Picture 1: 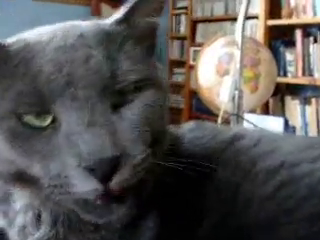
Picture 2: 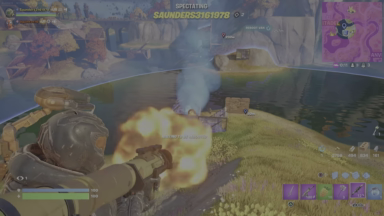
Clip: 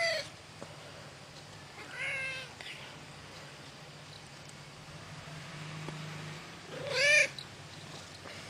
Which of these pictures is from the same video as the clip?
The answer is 1